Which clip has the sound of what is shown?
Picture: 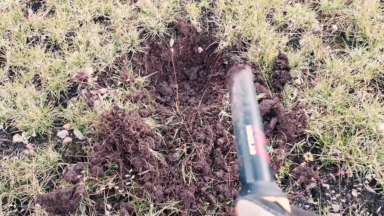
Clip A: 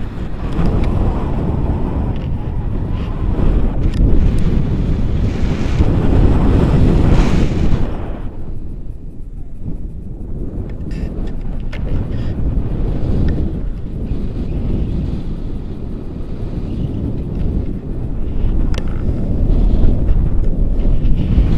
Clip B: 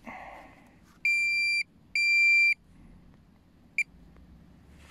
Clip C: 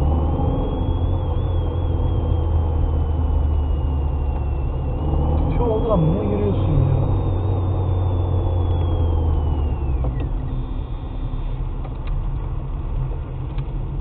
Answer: B